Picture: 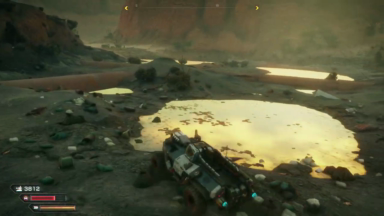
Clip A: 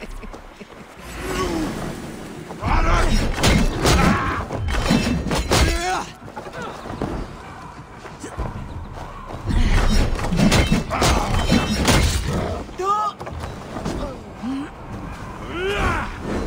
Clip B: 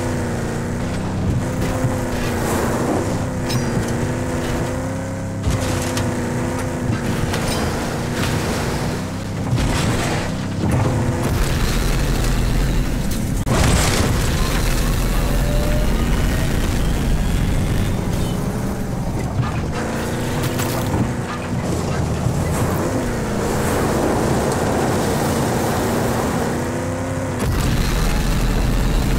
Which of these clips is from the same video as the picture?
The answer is B